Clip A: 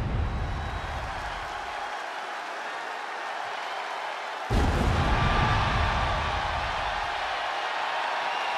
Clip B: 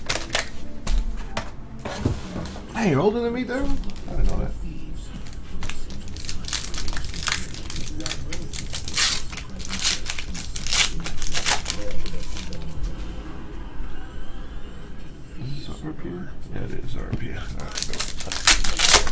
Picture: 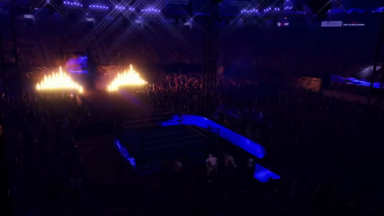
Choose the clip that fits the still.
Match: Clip A